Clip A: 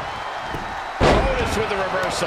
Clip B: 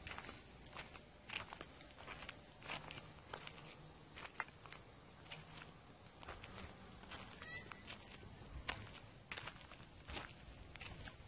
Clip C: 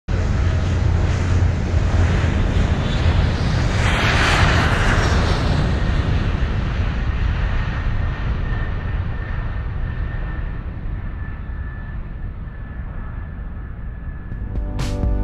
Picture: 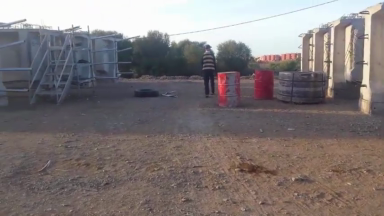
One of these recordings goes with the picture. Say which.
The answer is B